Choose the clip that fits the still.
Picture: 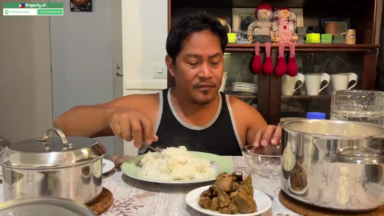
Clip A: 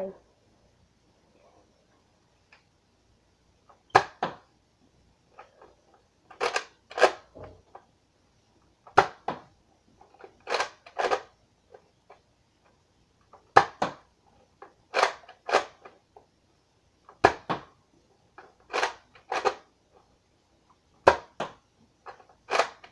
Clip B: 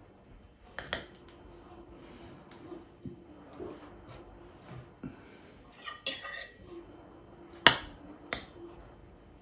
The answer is B